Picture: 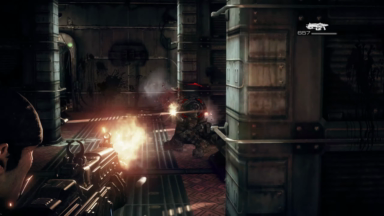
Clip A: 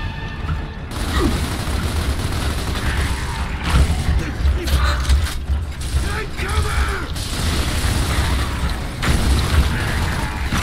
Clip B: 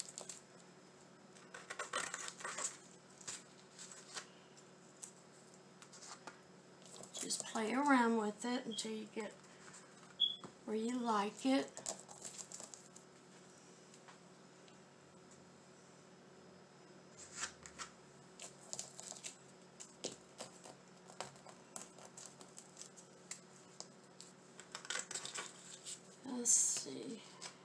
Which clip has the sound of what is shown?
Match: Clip A